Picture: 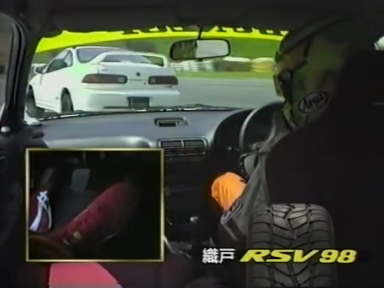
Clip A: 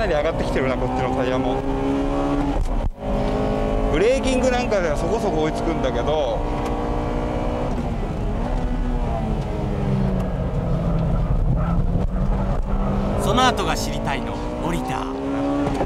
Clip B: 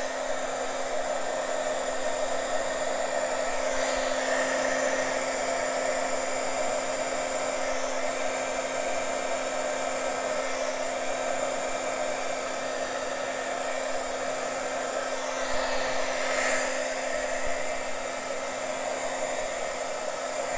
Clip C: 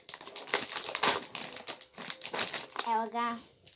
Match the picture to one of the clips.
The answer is A